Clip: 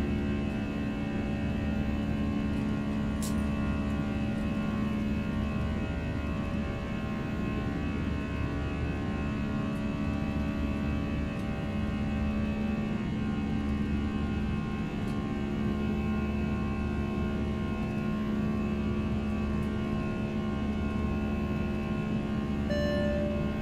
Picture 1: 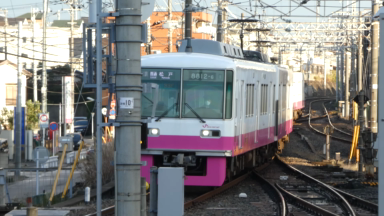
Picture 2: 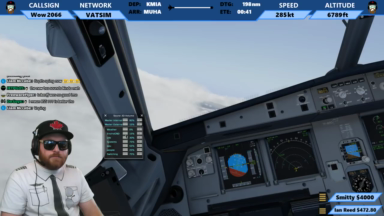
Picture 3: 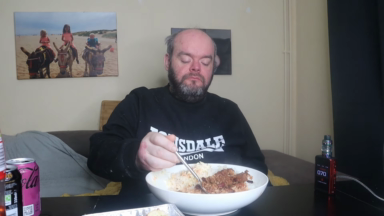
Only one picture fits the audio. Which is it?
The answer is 2